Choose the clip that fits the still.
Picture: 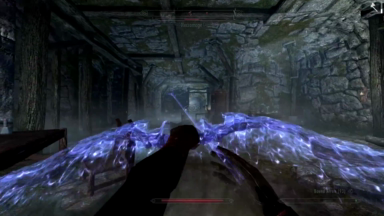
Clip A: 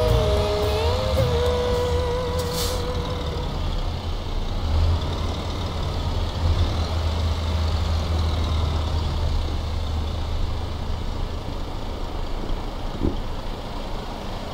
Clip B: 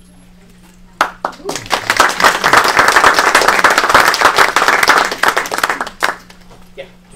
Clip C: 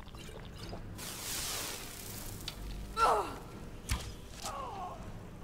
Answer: C